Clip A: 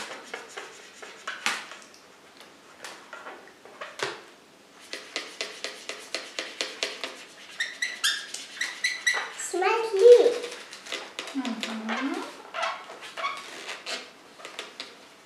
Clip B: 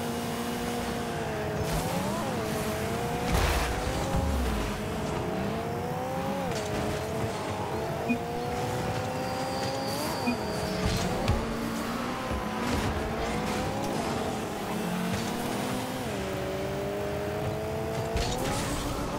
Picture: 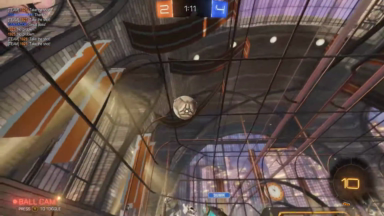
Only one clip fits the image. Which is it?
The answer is B